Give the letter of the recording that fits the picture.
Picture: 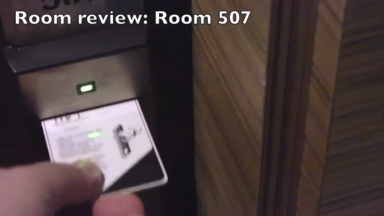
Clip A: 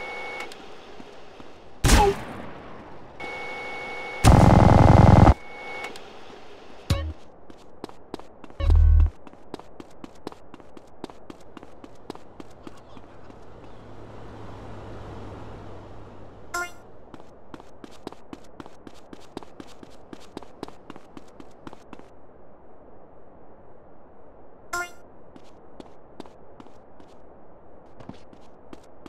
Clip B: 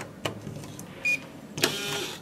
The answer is B